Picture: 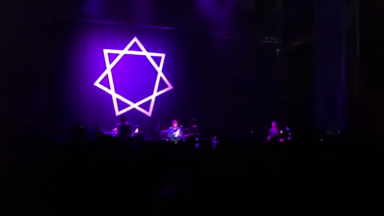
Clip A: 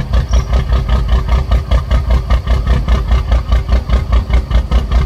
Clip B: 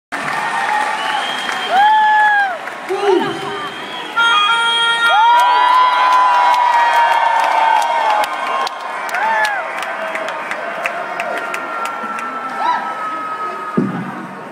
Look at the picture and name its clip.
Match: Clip B